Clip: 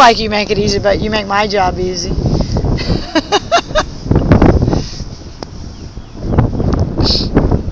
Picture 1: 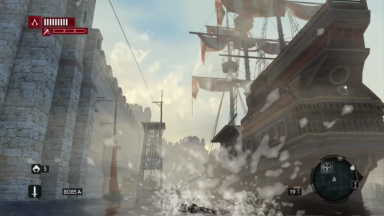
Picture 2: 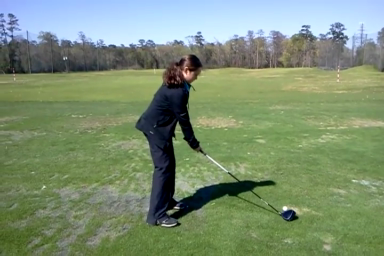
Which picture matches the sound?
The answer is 2